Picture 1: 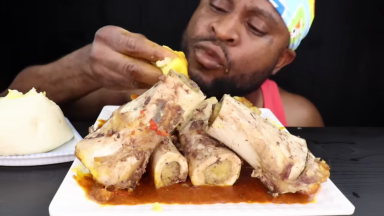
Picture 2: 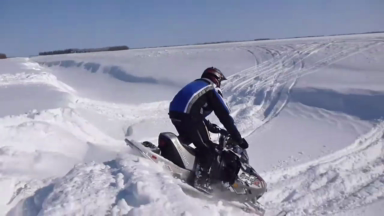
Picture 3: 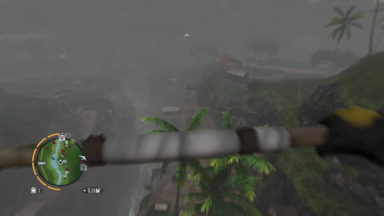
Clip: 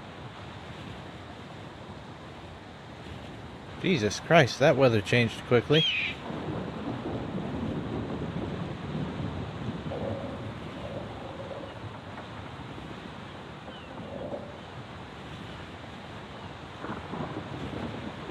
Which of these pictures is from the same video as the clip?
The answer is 3